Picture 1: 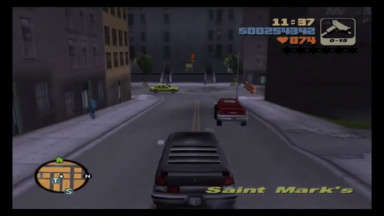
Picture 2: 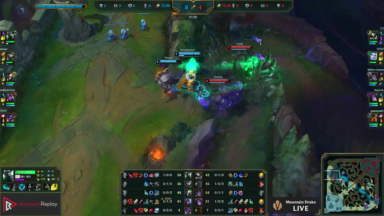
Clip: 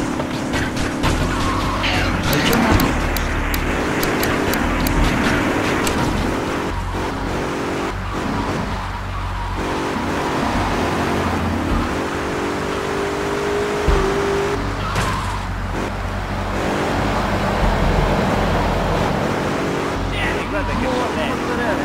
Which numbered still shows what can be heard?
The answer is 1